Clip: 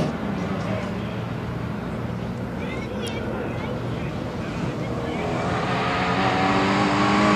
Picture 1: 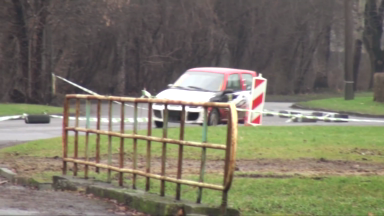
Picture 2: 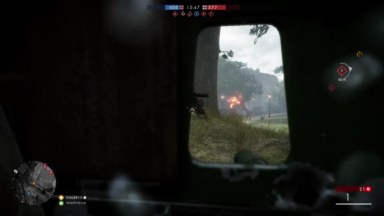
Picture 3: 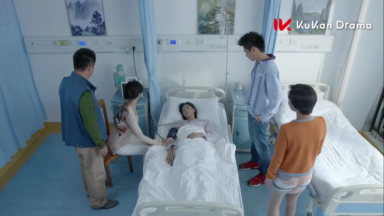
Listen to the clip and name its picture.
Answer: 1